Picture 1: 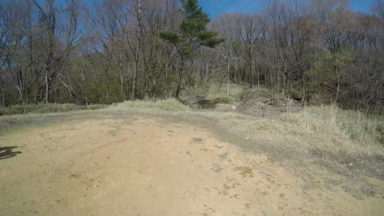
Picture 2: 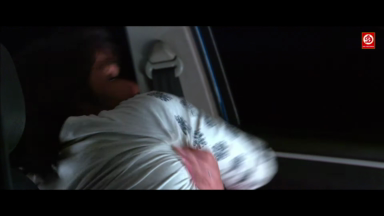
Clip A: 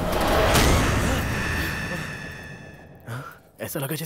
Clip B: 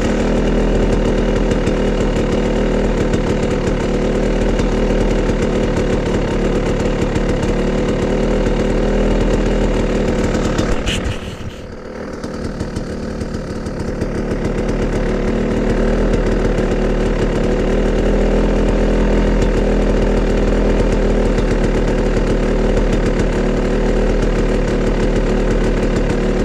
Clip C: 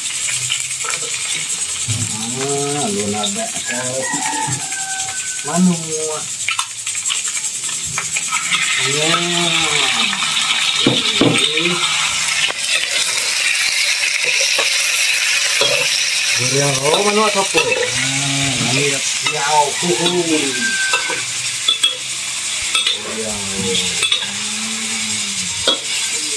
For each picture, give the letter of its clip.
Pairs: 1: B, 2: A